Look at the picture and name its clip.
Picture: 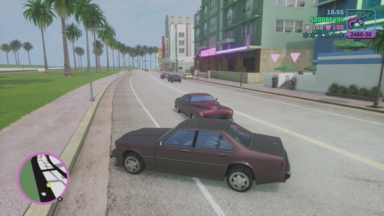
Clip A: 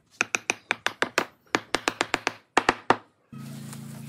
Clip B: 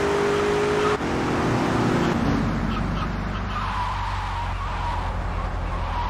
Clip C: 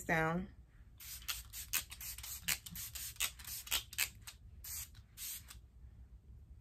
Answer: B